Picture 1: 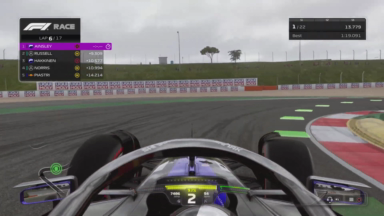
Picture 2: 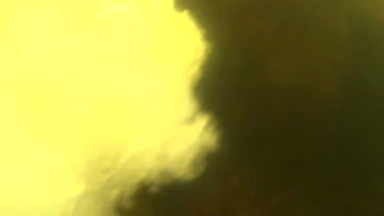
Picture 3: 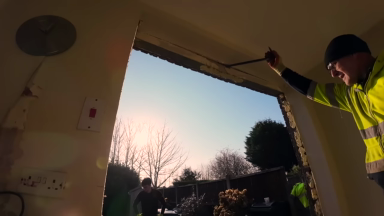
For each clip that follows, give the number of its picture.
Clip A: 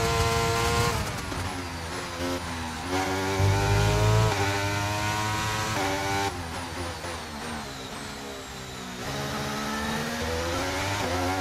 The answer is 1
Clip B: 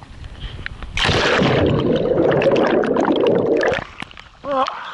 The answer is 2